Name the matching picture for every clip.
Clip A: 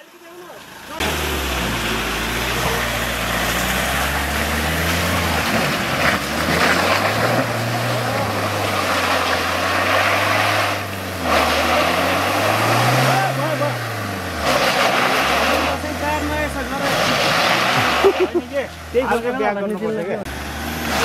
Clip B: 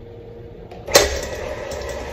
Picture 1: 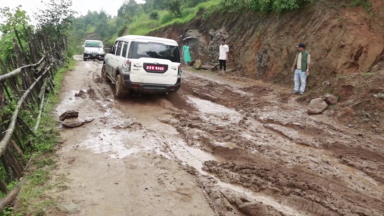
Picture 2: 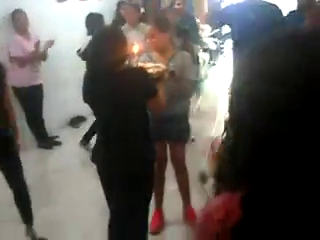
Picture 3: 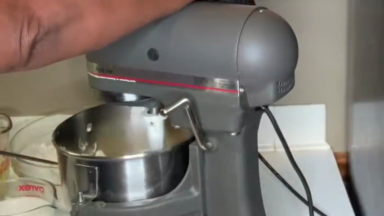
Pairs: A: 1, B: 3